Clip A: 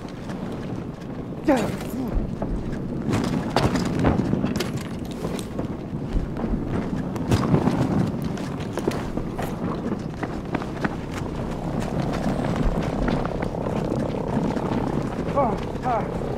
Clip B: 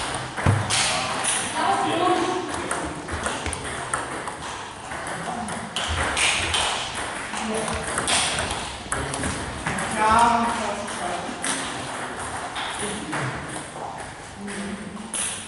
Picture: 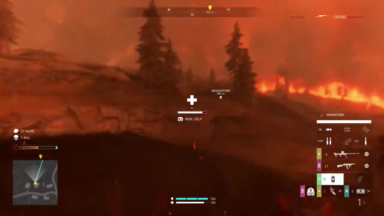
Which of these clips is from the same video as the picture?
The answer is A